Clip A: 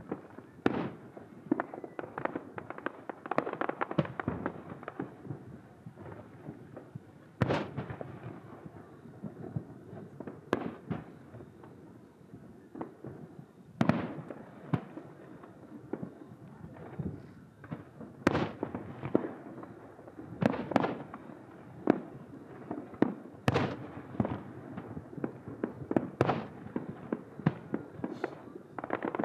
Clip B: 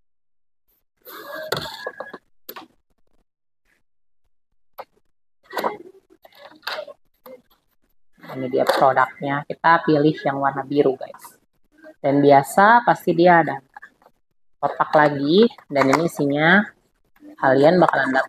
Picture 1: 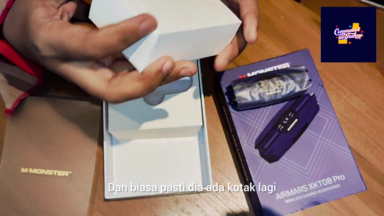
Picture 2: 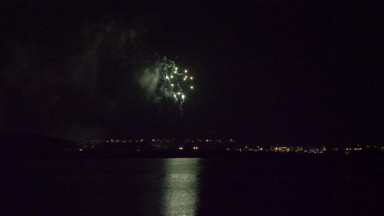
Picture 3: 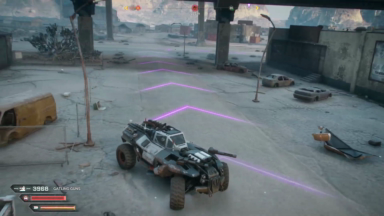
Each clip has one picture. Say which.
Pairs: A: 2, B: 1